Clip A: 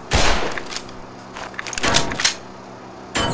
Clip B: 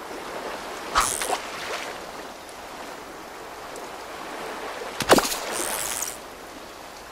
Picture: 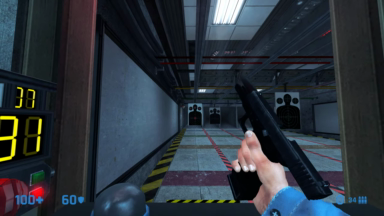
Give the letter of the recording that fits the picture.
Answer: A